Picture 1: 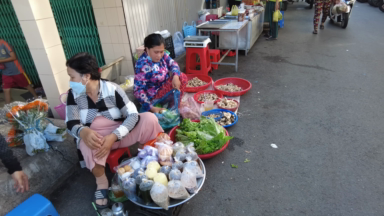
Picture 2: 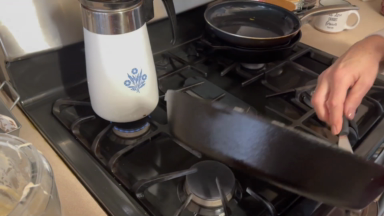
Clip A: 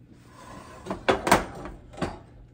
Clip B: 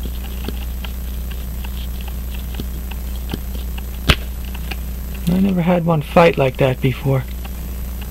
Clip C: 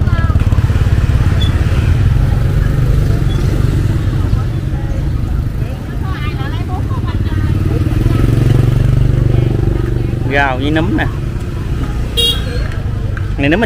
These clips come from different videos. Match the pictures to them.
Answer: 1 C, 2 A